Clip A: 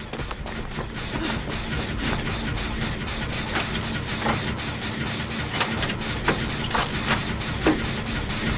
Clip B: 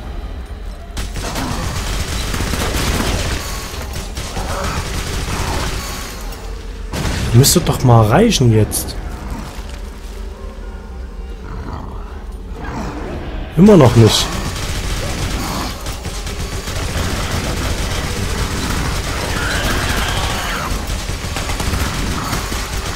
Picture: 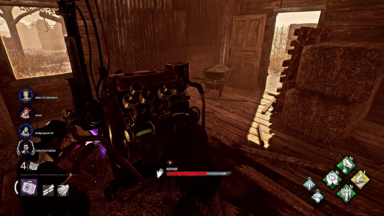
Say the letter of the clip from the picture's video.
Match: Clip A